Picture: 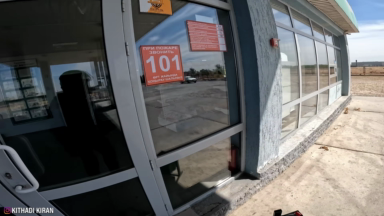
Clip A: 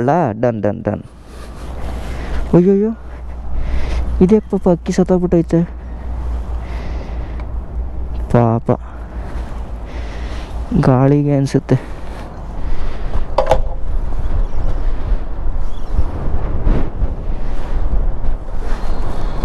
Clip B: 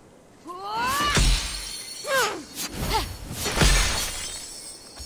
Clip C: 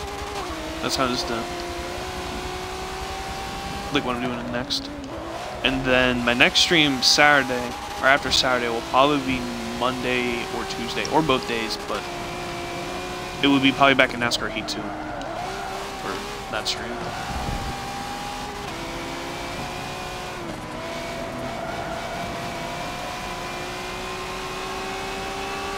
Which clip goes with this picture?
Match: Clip A